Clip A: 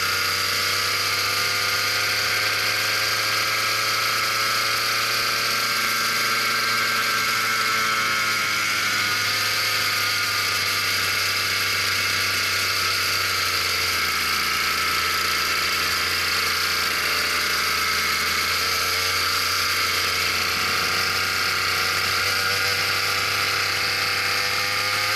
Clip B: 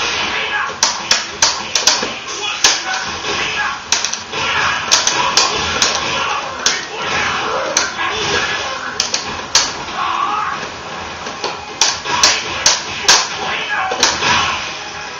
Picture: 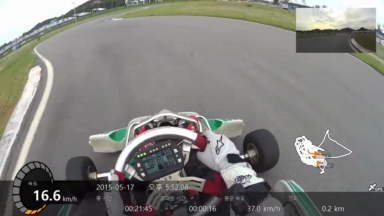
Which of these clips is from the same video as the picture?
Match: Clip A